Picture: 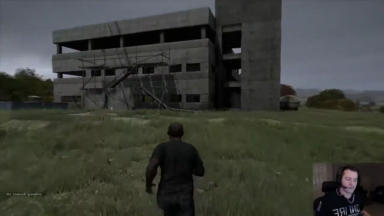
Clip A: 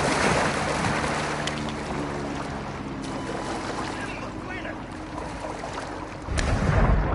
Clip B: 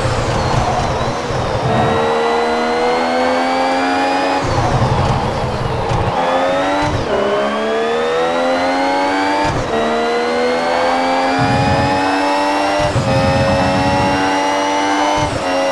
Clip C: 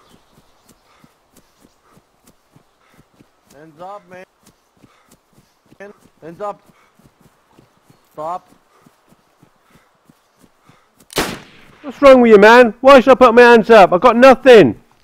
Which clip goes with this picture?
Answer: C